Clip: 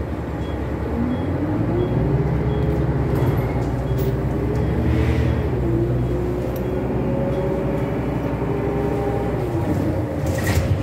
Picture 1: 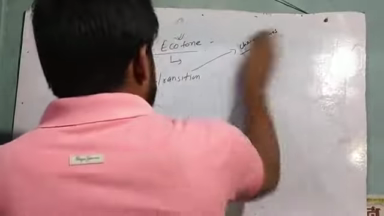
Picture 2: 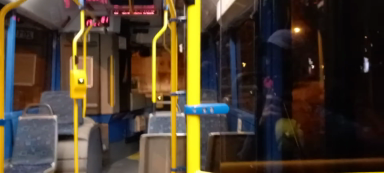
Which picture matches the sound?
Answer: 2